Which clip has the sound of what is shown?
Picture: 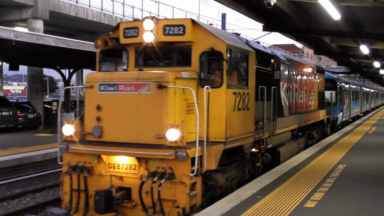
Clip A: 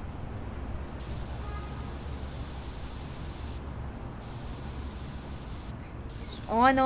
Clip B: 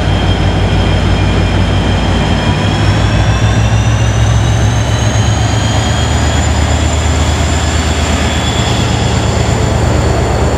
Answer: B